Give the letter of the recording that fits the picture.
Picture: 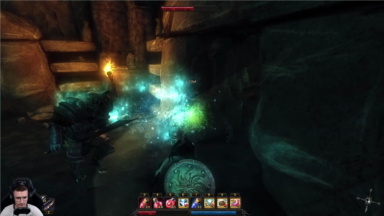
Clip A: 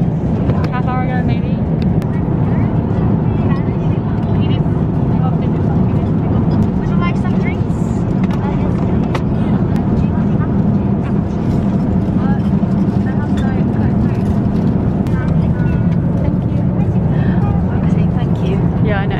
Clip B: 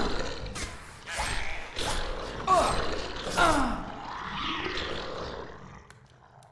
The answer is B